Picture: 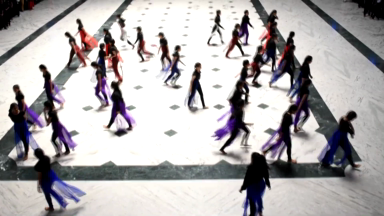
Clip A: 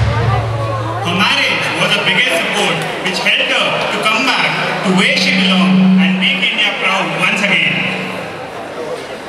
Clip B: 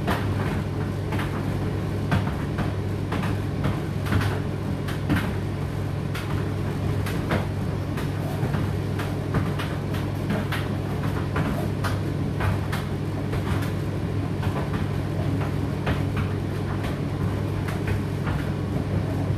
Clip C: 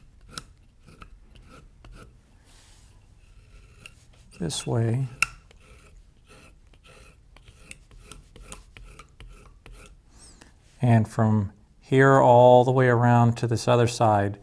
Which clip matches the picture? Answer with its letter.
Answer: A